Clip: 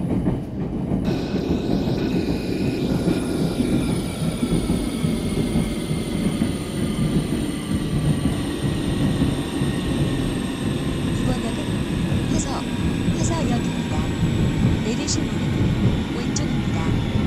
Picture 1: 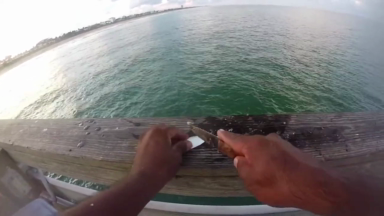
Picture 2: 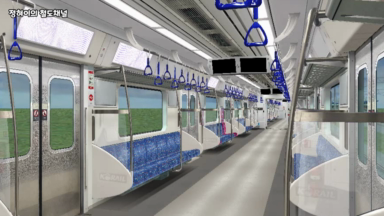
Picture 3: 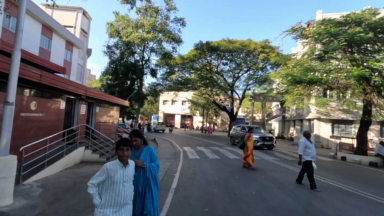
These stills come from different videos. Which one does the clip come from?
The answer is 2